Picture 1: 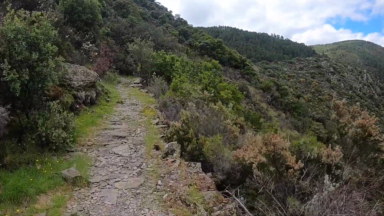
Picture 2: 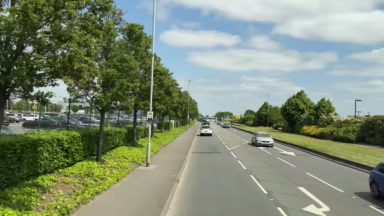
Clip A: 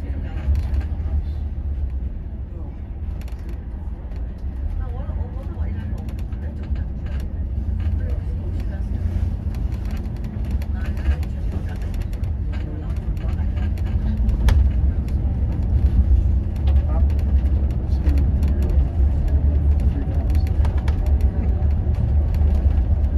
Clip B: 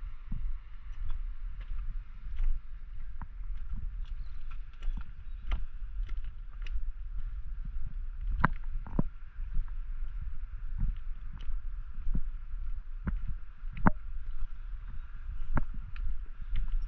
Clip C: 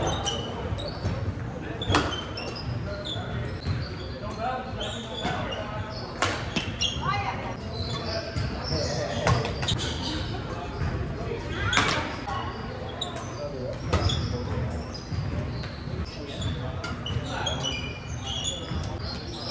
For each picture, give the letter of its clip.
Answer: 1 B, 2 A